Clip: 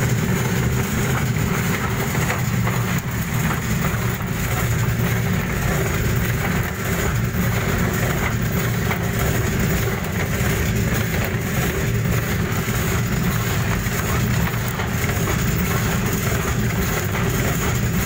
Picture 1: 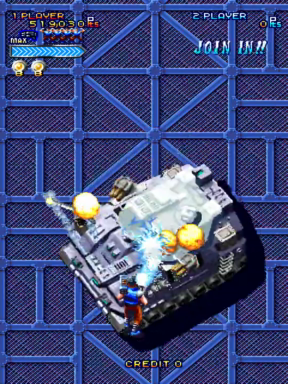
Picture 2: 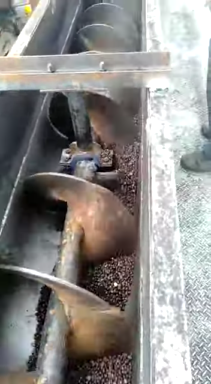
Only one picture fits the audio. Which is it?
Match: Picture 2